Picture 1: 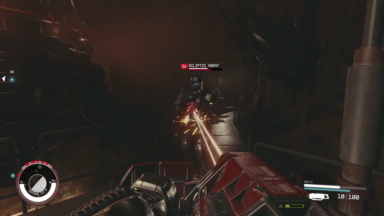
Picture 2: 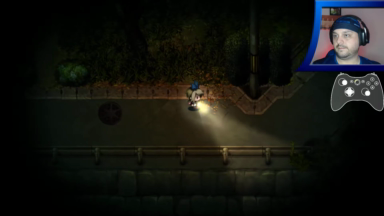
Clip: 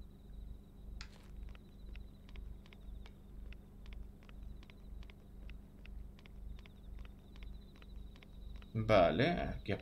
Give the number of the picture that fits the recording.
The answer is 2